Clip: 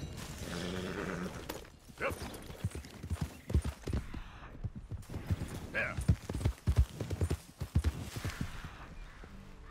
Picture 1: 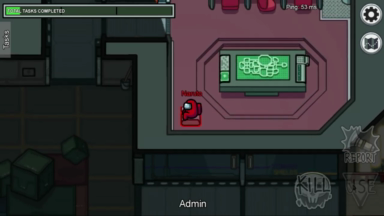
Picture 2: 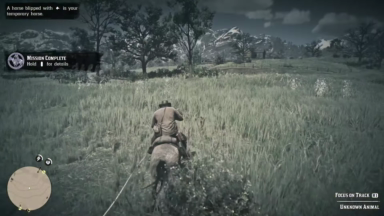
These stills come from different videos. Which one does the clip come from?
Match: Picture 2